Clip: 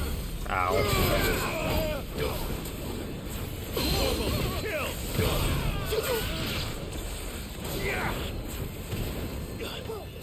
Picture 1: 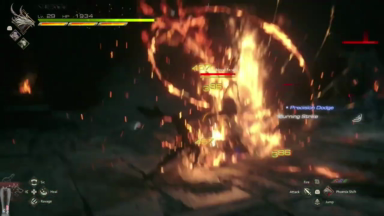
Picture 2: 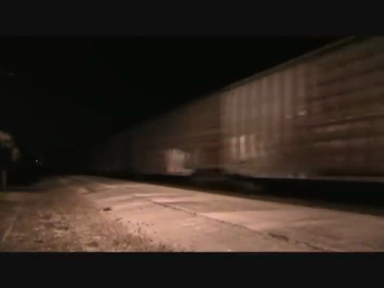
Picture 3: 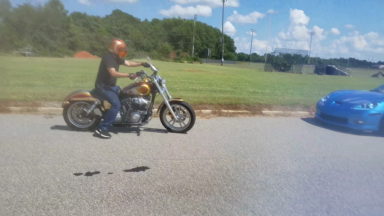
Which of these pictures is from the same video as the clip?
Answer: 1